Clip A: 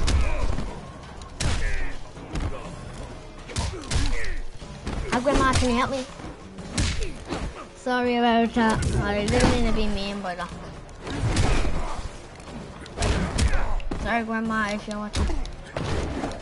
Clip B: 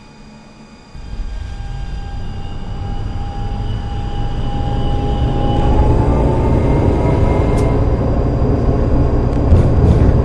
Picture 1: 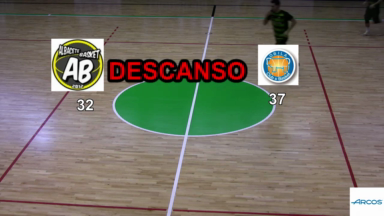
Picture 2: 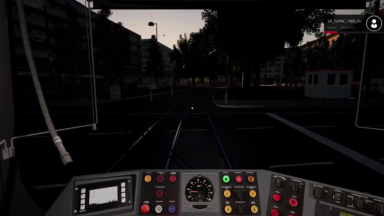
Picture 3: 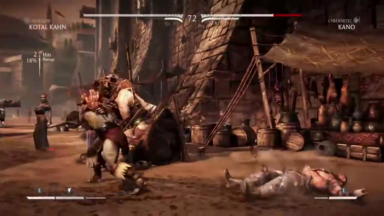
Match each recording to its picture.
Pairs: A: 3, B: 2